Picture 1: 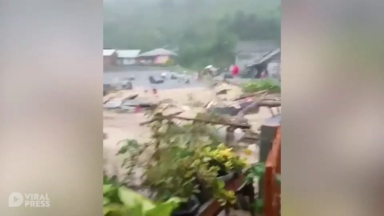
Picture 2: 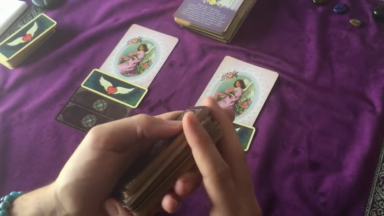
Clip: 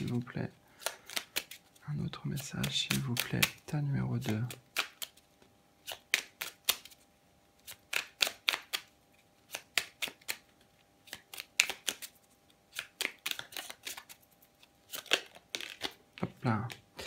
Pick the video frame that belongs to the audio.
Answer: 2